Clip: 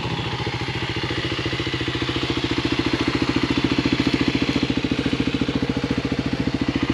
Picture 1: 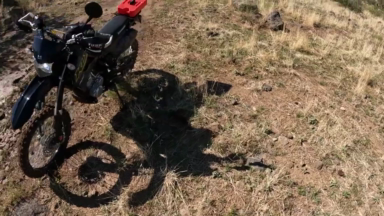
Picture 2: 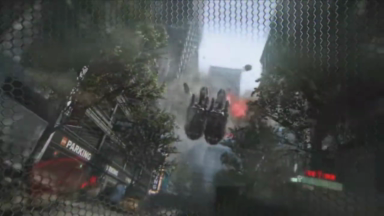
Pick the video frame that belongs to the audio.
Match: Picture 1